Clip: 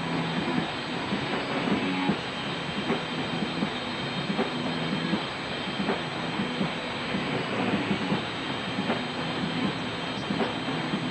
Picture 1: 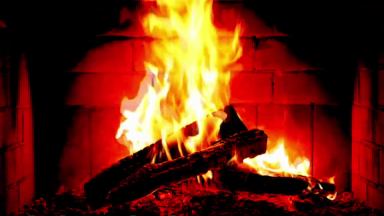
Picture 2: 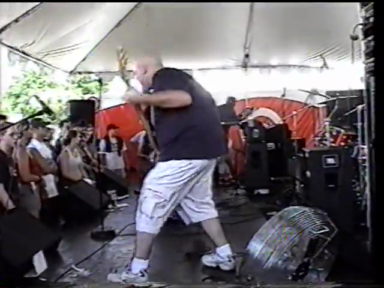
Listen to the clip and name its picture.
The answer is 2